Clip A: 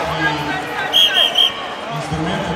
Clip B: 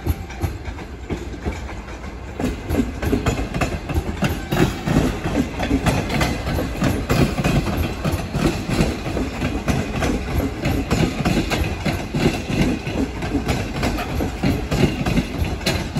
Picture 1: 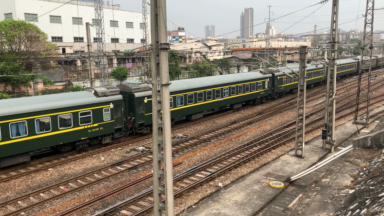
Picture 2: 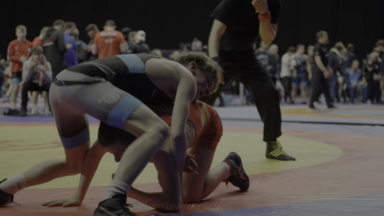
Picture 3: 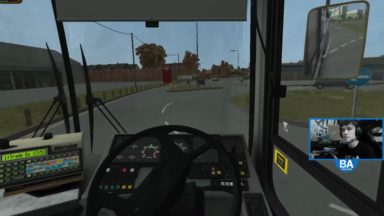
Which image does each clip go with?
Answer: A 2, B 1